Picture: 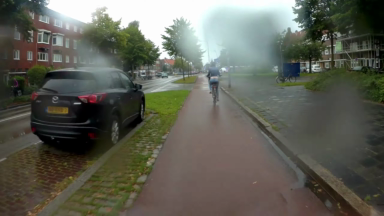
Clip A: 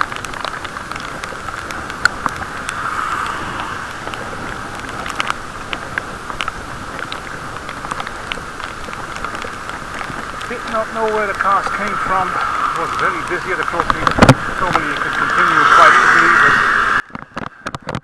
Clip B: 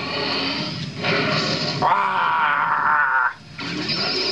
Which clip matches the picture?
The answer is A